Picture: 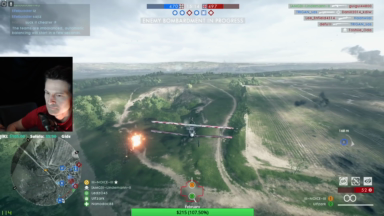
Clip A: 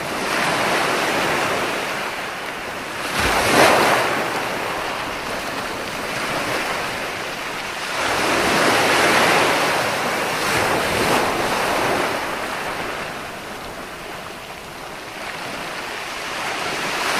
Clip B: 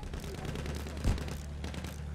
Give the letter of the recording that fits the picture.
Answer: B